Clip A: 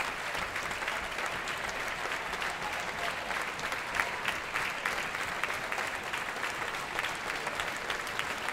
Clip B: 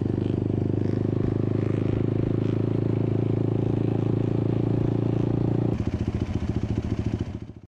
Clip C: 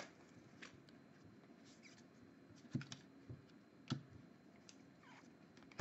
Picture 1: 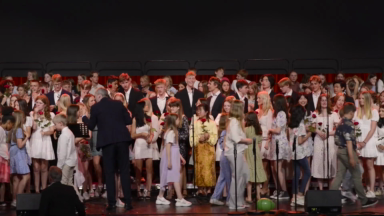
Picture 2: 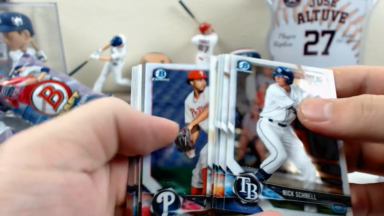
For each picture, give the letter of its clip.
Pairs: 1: A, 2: C